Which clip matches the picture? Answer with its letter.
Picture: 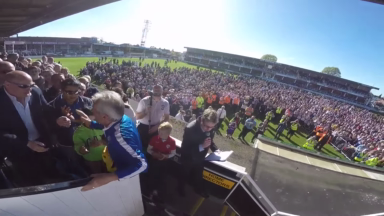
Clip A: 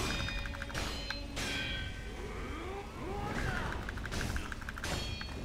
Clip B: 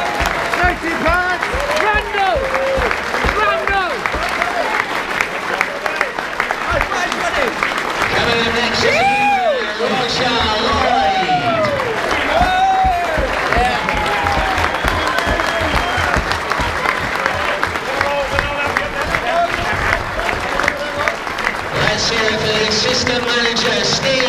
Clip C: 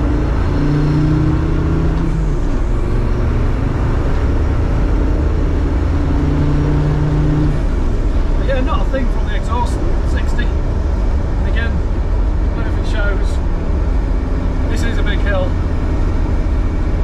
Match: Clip B